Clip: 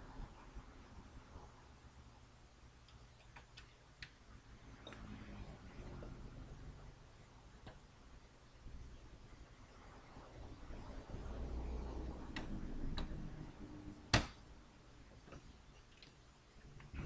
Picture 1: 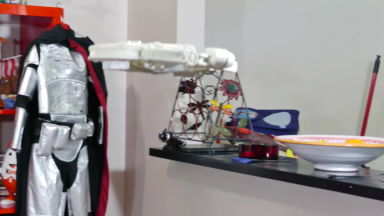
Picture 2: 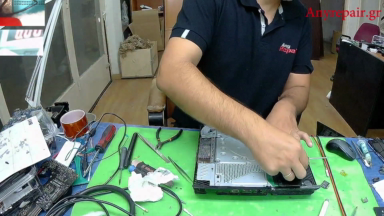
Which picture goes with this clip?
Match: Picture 2